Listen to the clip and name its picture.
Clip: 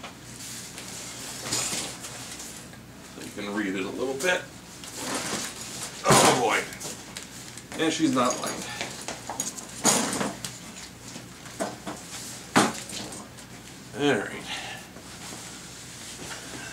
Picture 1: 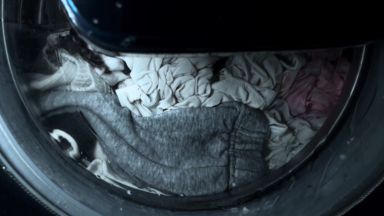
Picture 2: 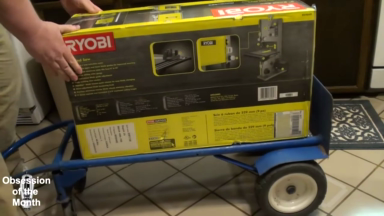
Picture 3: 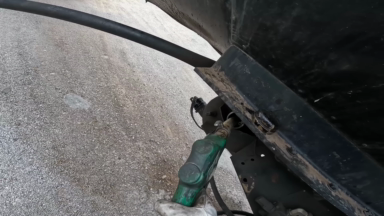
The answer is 2